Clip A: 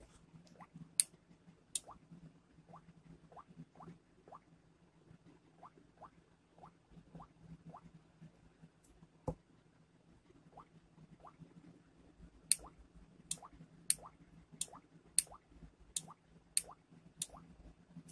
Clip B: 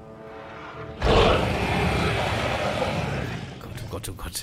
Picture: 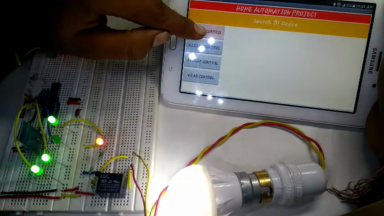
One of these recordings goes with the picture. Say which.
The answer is A